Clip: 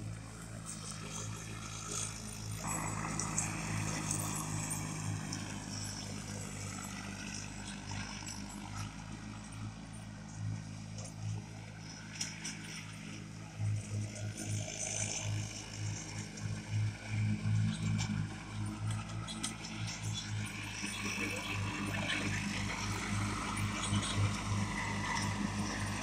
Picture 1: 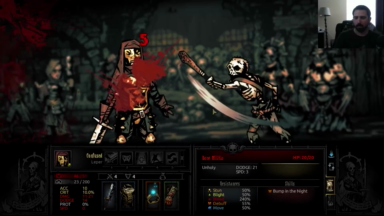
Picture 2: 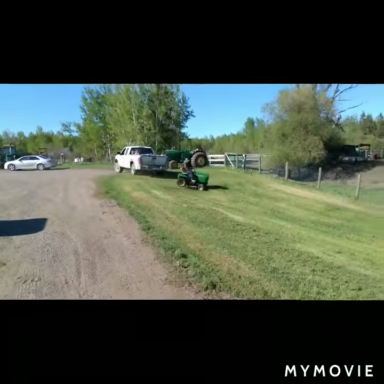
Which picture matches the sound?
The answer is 2